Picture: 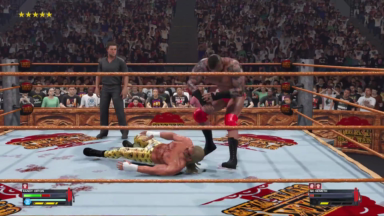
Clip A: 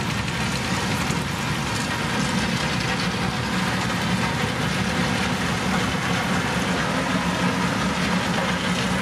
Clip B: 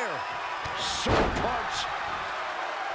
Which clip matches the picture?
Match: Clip B